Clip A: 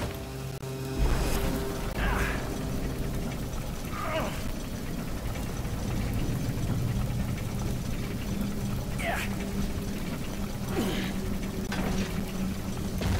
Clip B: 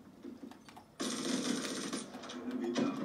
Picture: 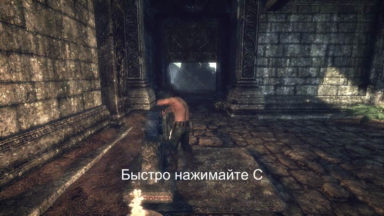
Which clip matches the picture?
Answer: A